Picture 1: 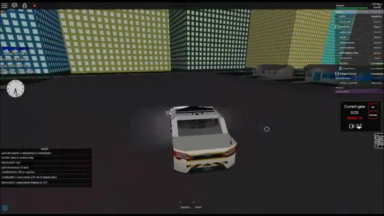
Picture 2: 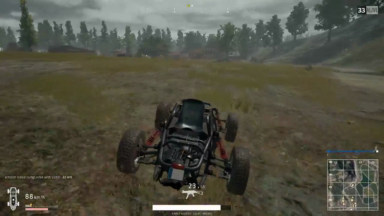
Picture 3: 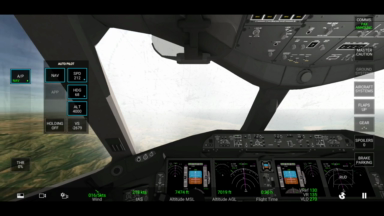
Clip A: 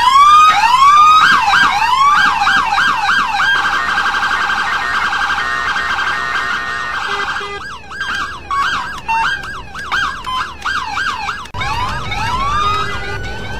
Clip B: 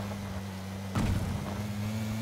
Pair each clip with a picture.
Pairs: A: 1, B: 2